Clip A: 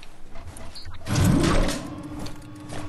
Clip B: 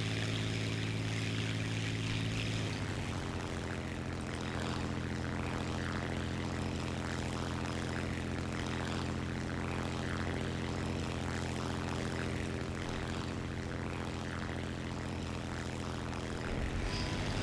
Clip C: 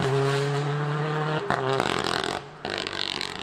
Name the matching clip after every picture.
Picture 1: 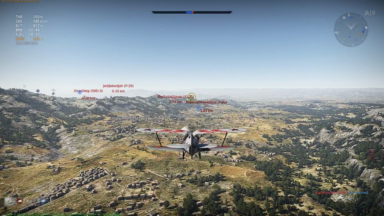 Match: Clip B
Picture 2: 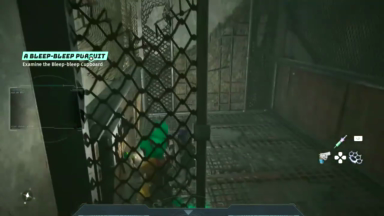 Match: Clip A